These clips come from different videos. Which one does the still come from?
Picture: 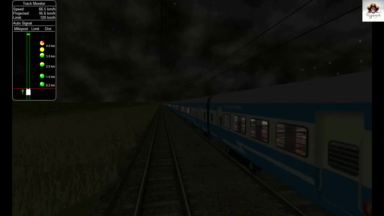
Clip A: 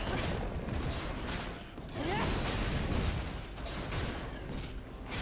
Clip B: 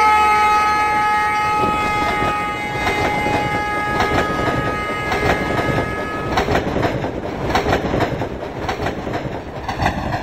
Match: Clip B